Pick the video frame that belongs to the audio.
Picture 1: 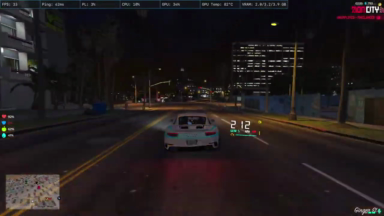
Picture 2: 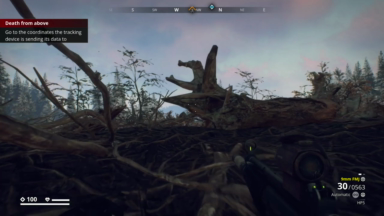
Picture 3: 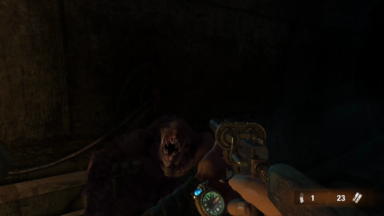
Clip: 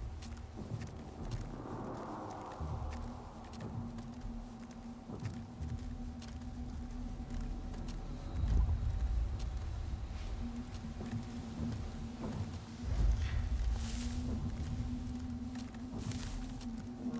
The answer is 2